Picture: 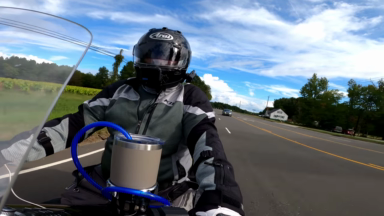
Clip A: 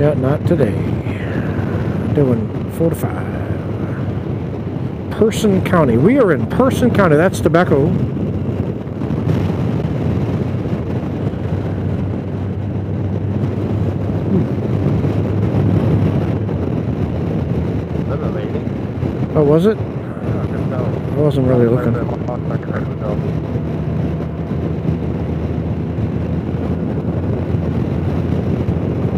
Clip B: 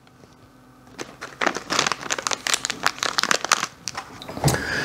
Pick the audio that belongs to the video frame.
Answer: A